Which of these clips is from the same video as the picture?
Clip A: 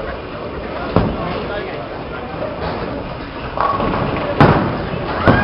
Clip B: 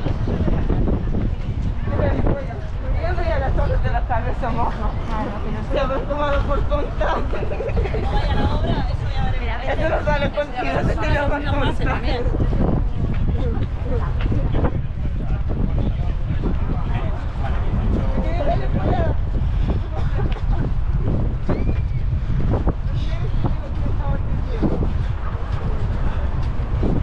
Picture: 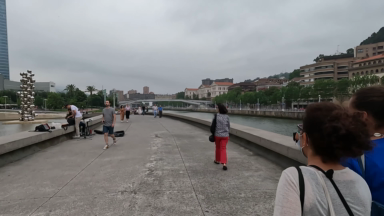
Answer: B